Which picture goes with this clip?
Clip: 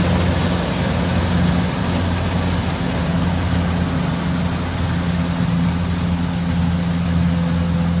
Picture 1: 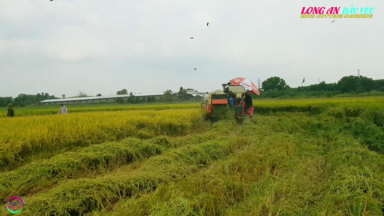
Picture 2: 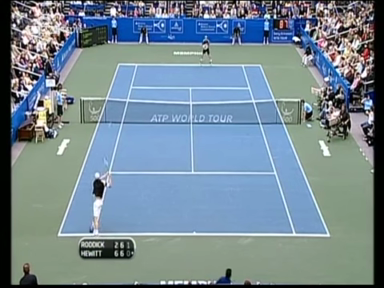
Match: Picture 1